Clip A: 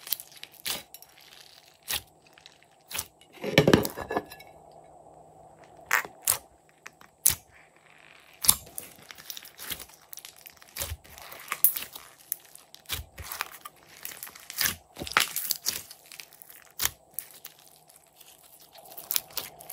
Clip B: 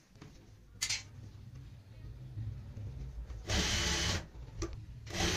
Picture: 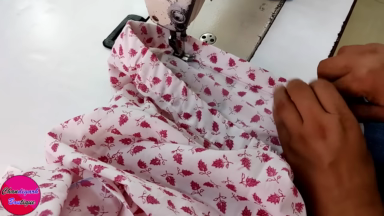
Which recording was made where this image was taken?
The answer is B